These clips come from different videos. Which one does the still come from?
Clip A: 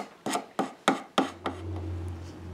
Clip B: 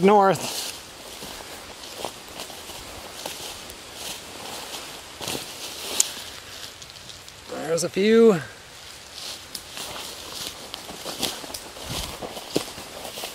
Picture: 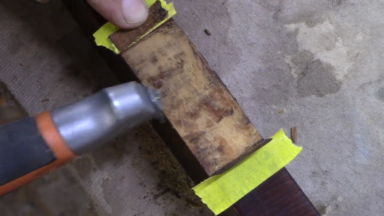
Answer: A